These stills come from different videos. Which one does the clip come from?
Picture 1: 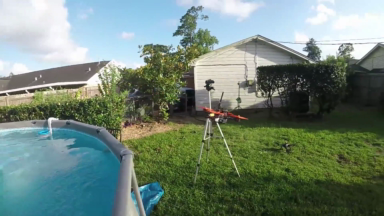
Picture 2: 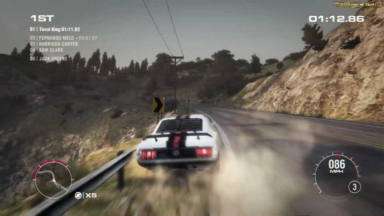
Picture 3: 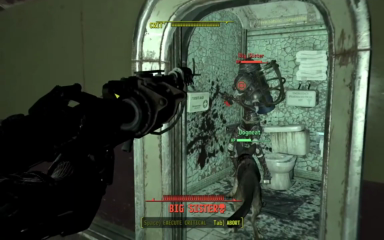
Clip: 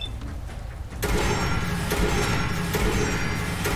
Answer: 3